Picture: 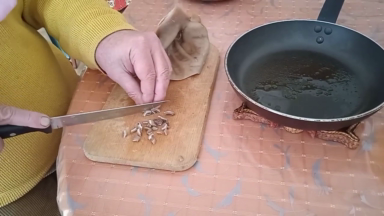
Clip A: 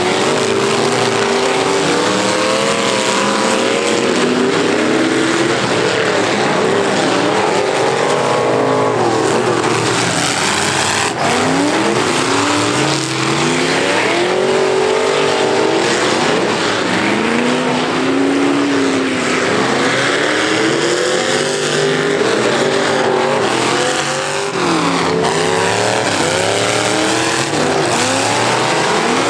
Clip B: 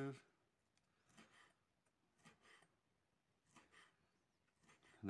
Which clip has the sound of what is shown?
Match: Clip B